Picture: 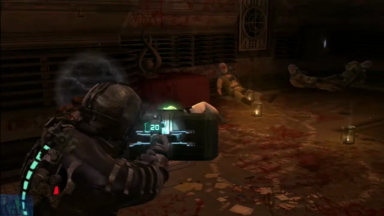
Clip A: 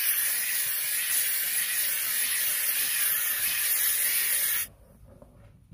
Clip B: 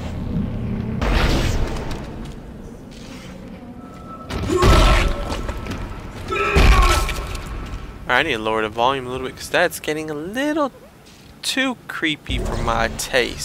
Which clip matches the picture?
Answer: B